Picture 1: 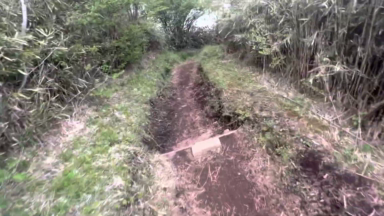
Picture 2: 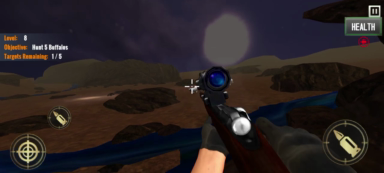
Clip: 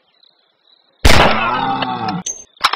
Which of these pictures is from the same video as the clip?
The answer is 2